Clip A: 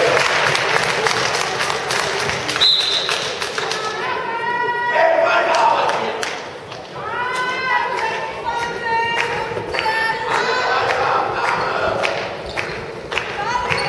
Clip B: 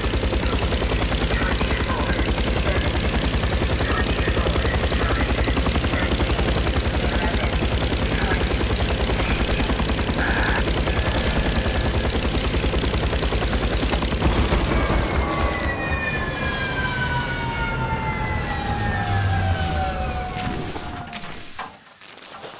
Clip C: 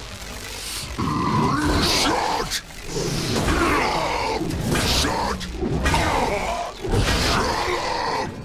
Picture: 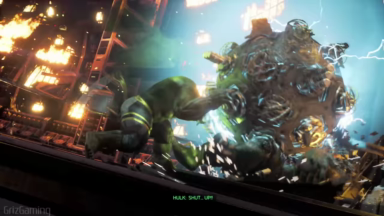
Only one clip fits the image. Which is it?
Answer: C